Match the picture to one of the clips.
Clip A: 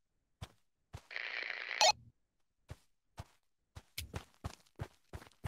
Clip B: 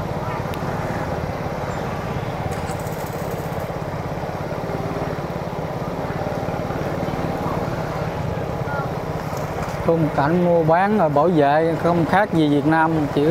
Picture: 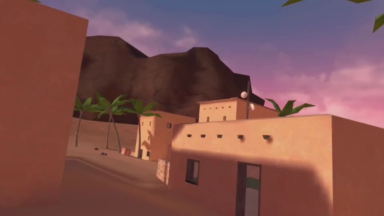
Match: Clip A